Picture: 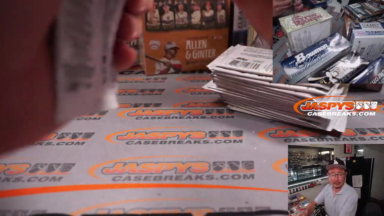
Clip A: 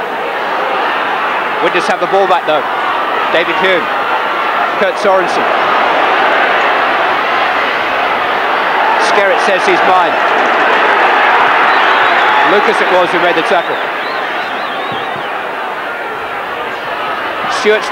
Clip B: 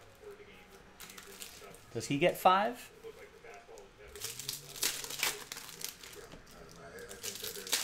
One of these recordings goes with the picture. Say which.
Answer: B